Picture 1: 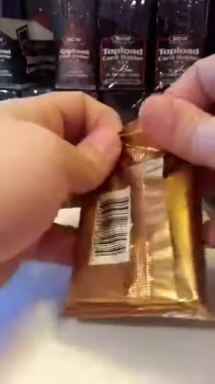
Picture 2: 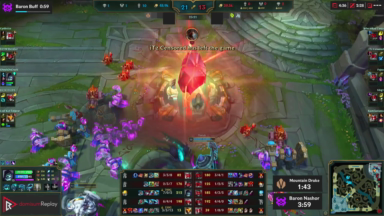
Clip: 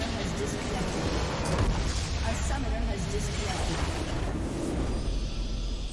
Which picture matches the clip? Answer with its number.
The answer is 2